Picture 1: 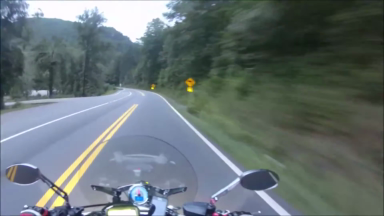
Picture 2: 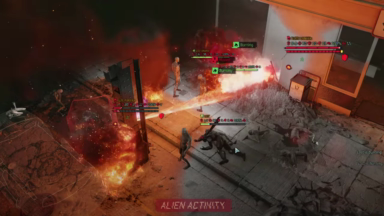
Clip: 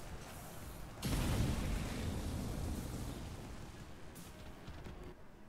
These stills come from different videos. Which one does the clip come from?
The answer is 2